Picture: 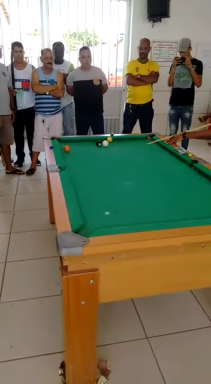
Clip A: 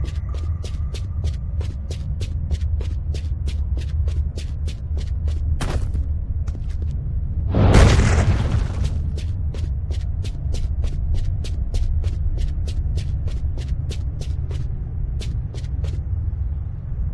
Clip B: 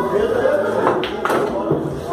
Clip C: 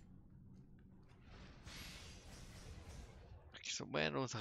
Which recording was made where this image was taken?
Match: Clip B